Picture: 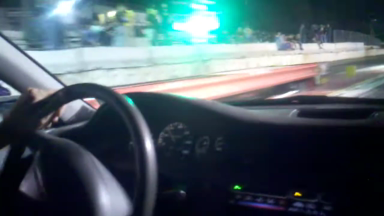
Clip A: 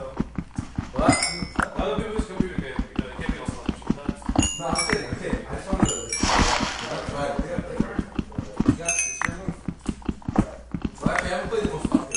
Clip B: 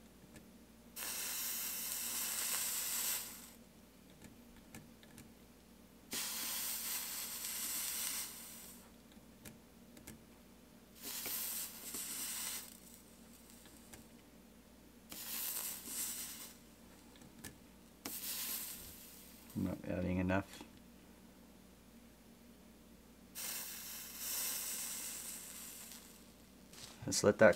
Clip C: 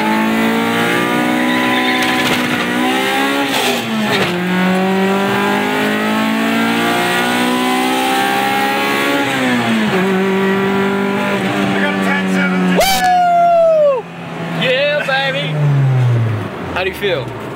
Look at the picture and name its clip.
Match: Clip C